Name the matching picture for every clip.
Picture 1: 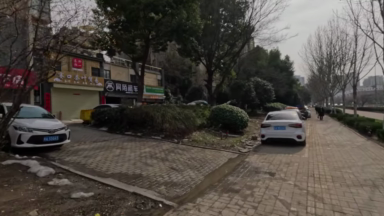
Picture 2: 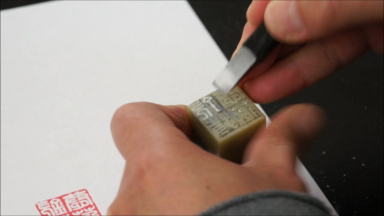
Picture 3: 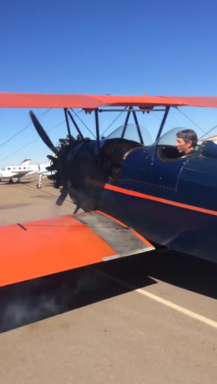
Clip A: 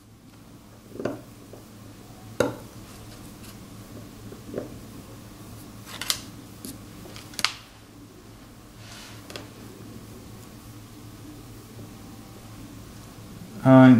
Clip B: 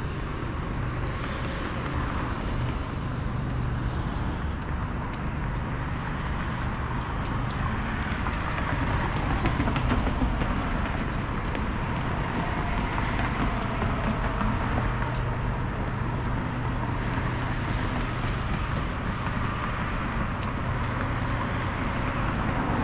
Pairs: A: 2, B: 1